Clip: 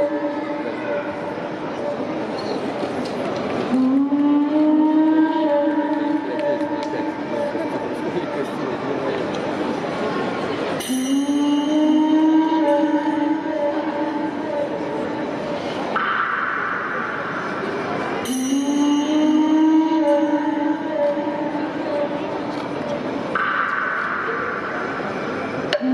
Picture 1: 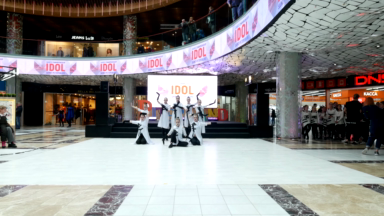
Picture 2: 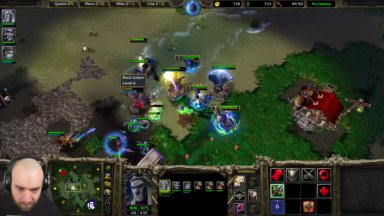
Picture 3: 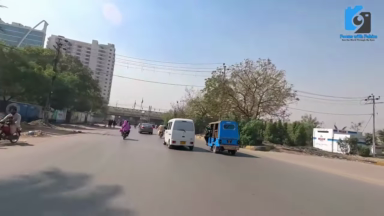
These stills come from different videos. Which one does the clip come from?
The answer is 1